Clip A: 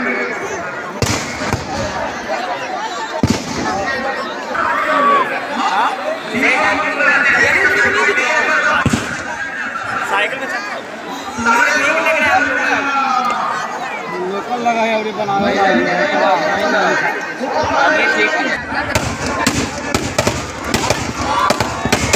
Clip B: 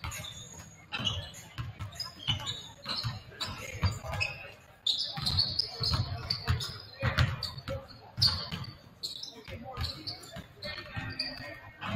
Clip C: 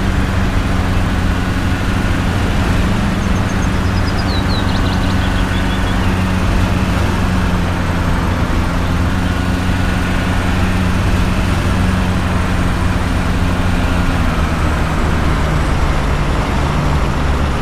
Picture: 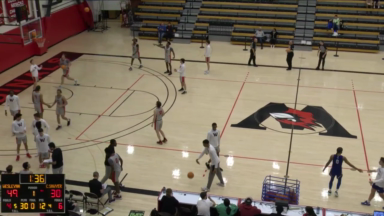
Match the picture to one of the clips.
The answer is B